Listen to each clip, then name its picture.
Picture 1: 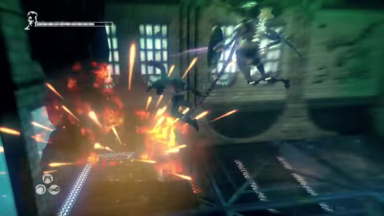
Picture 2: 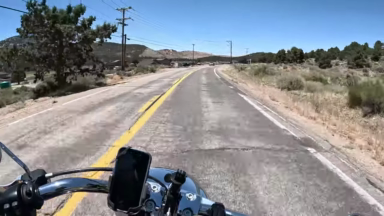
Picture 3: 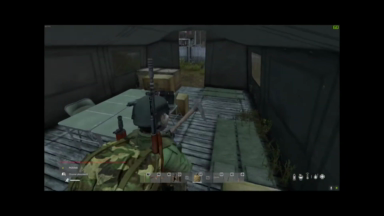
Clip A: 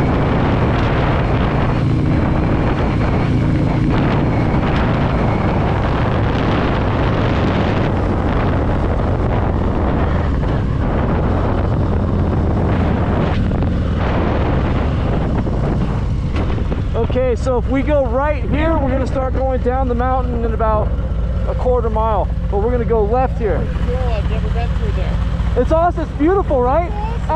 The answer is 2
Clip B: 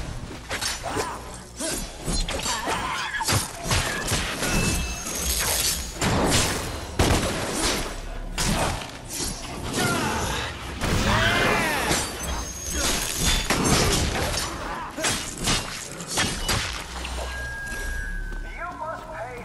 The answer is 1